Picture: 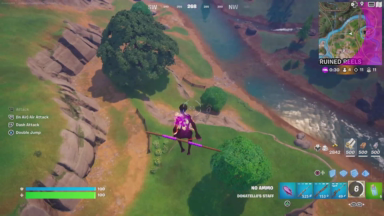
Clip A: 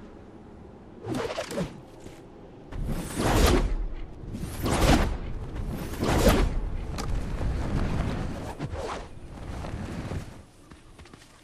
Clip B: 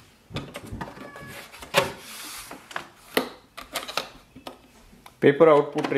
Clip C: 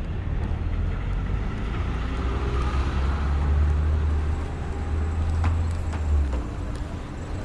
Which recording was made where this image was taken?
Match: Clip A